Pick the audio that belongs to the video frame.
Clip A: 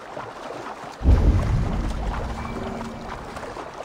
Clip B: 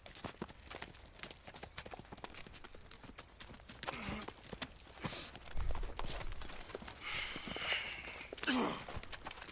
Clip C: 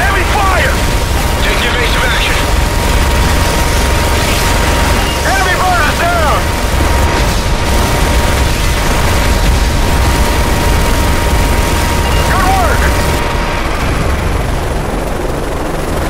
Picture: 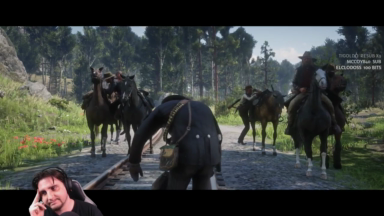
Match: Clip B